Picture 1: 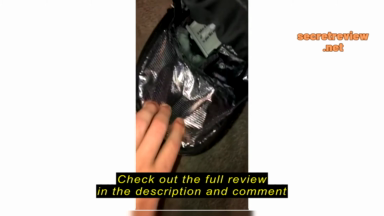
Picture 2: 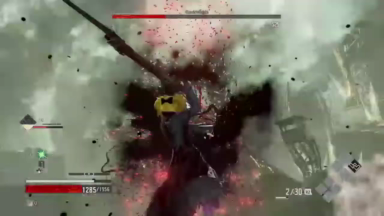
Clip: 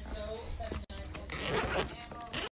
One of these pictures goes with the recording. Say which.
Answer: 1